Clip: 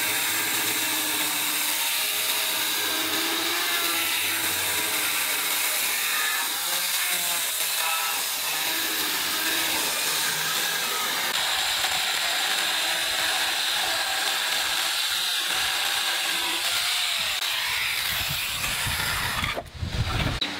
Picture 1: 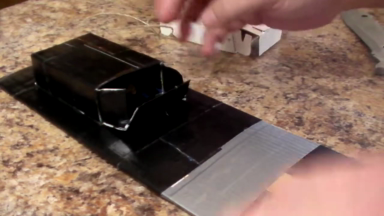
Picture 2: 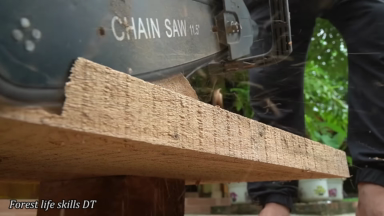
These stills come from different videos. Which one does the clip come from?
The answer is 2